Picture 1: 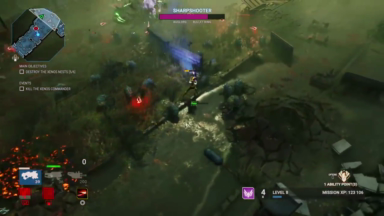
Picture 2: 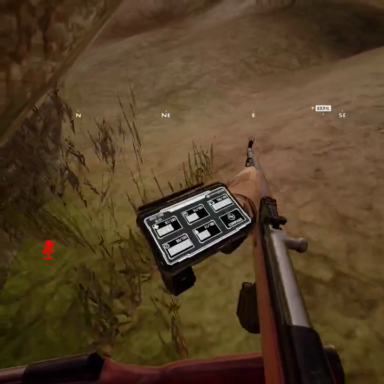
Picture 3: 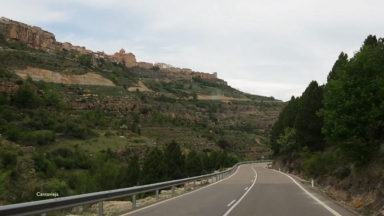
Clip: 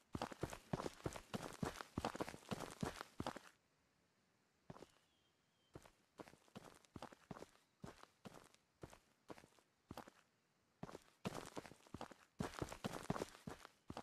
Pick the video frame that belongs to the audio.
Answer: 2